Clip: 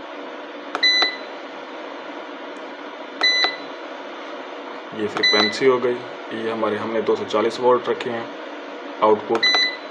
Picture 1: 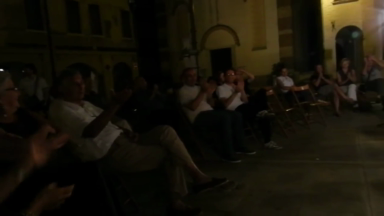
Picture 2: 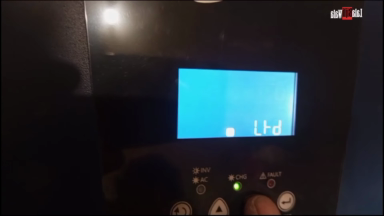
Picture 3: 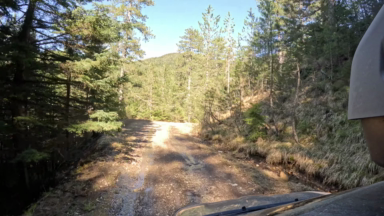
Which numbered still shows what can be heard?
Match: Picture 2